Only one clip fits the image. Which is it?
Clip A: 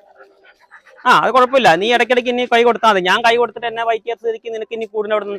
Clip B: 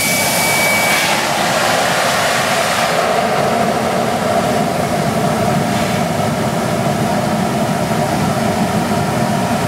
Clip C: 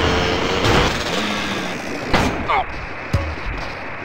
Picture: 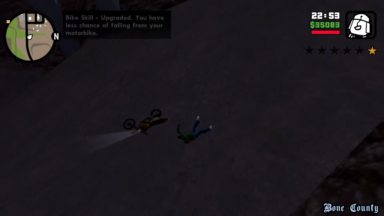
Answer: C